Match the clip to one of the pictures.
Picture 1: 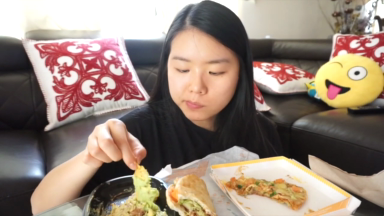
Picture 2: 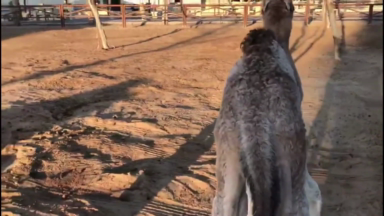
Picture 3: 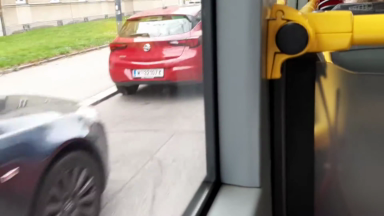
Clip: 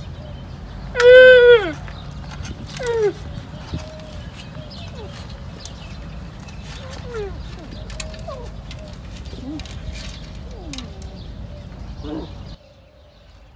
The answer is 2